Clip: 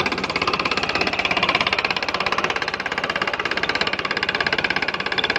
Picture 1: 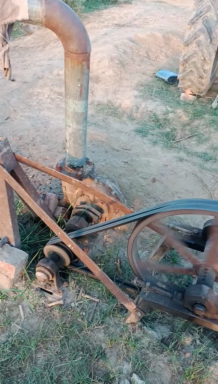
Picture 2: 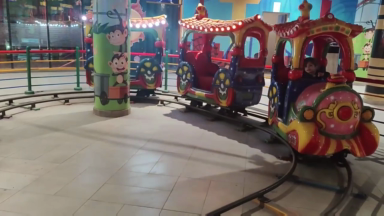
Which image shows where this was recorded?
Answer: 1